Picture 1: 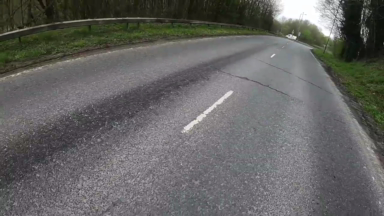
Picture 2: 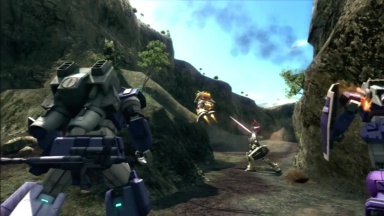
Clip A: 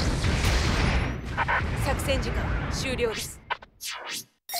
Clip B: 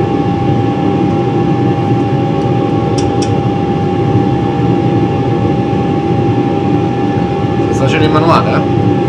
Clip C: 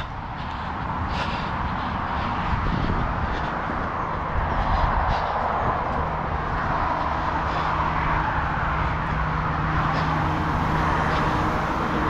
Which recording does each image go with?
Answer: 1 C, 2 A